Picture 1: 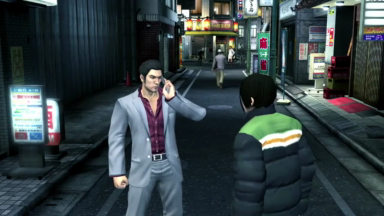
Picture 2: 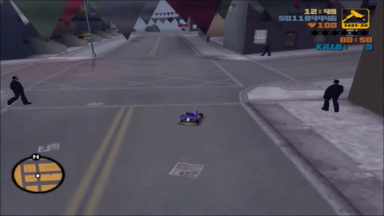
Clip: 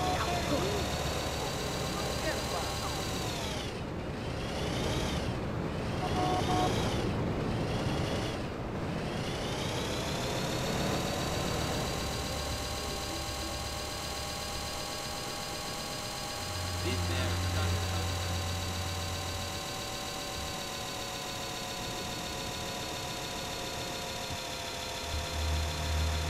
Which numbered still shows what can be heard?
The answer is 2